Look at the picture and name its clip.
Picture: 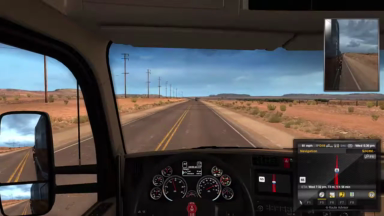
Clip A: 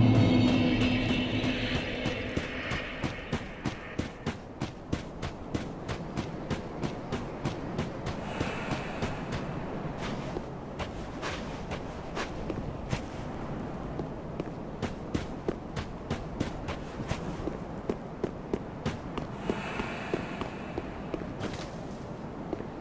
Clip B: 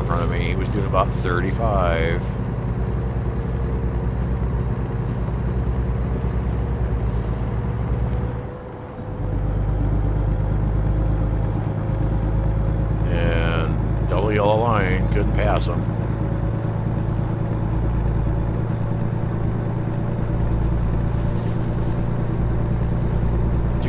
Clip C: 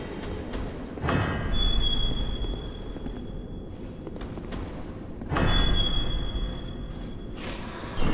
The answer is B